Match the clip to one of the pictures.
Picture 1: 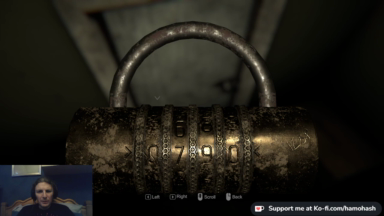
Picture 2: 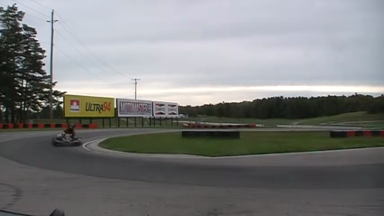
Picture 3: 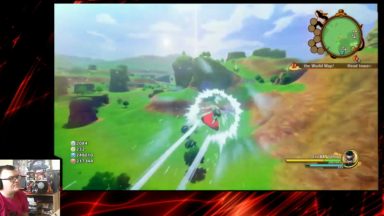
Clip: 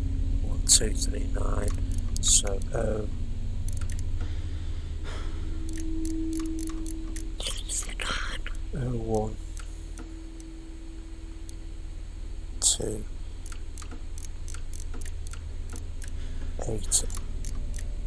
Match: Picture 1